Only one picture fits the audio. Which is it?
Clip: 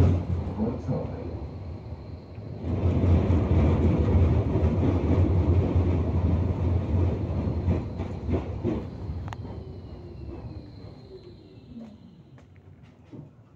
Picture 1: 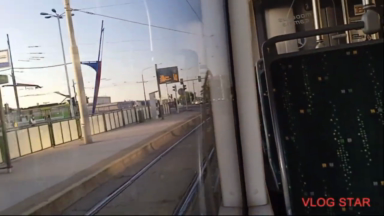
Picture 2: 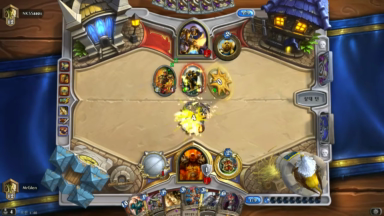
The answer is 1